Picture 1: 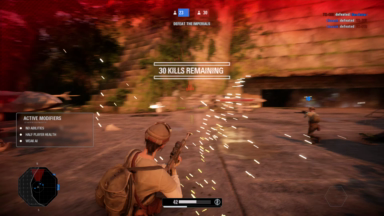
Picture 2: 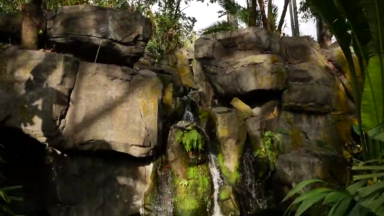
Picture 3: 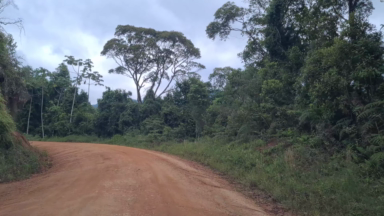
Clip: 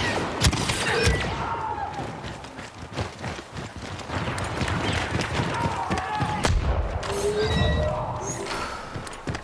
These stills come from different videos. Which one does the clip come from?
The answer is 1